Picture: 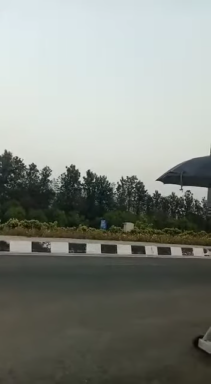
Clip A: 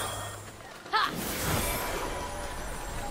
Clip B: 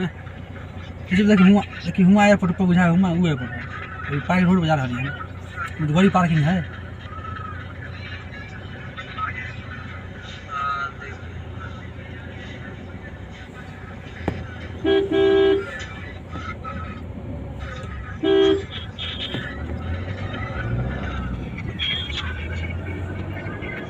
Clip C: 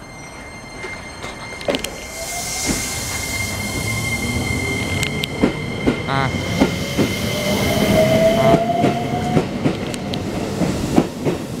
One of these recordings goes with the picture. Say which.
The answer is B